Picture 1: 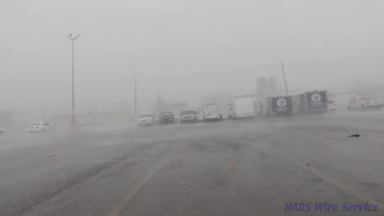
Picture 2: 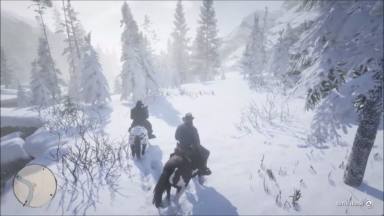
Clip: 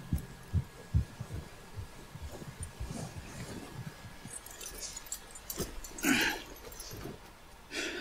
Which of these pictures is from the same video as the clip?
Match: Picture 2